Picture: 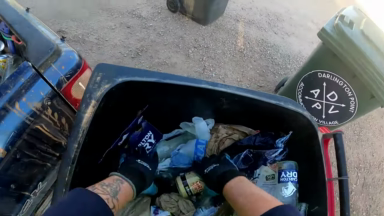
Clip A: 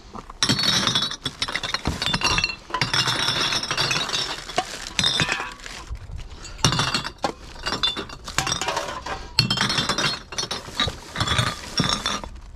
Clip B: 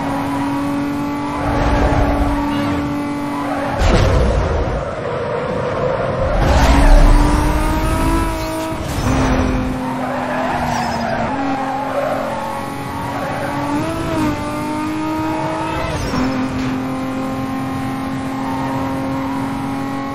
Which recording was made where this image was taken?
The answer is A